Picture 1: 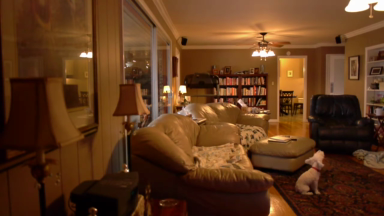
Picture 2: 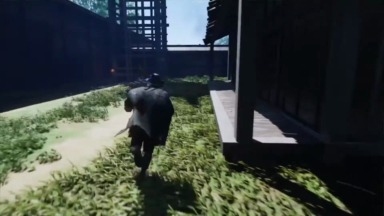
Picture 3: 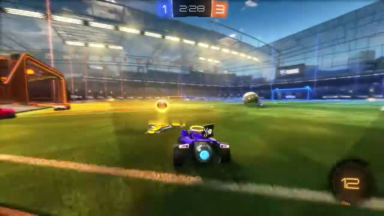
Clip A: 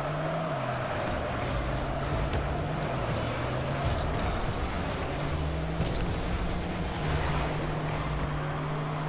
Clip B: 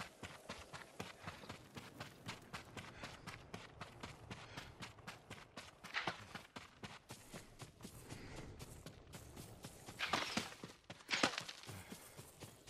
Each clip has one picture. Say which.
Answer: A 3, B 2